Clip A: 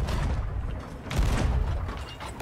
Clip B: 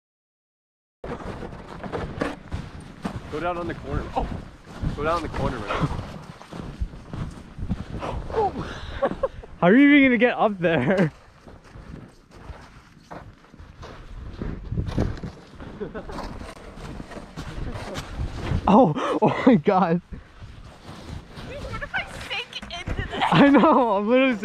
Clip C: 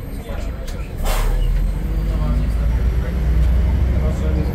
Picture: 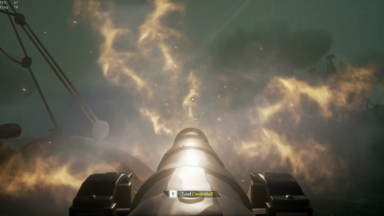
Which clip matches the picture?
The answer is A